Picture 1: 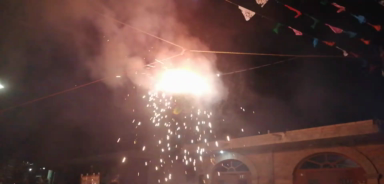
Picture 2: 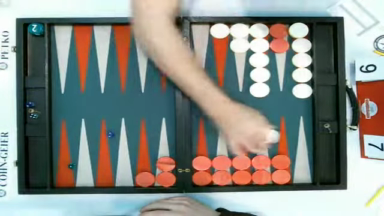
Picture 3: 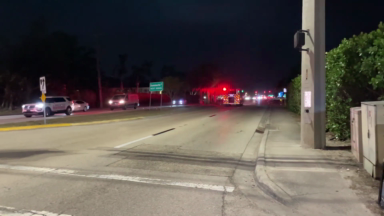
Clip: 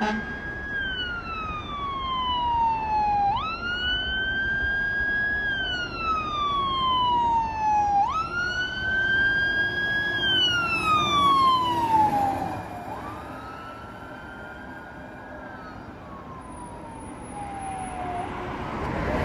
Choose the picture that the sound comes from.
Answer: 3